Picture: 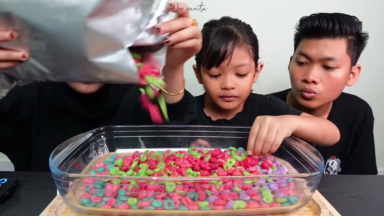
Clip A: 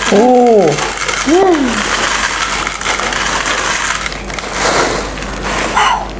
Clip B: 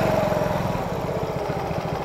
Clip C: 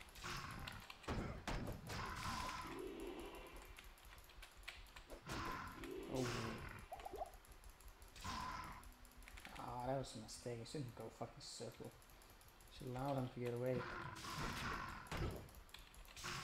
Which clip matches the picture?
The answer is A